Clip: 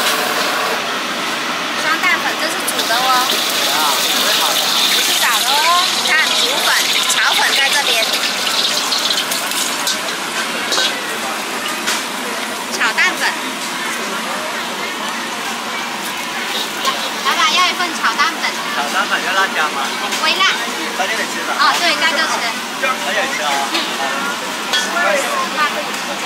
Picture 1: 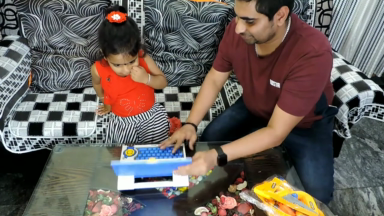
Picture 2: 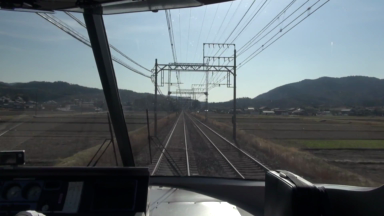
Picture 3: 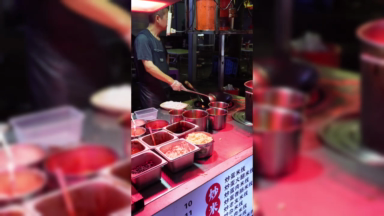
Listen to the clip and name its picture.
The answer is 3